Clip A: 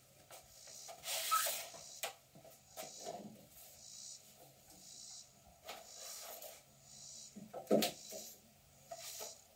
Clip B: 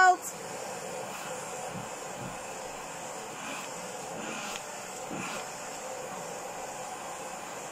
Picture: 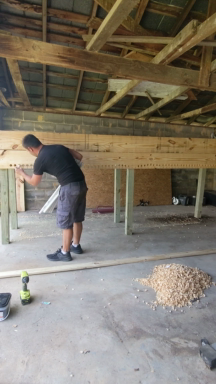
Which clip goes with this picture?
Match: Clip A